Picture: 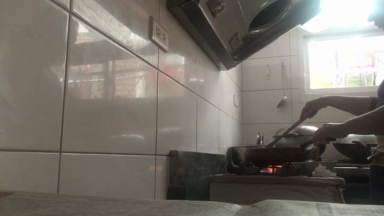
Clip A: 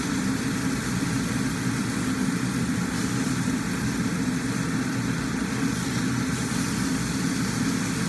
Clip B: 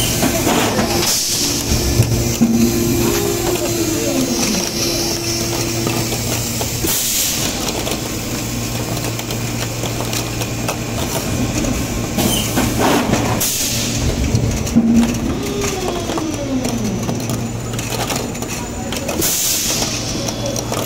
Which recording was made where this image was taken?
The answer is A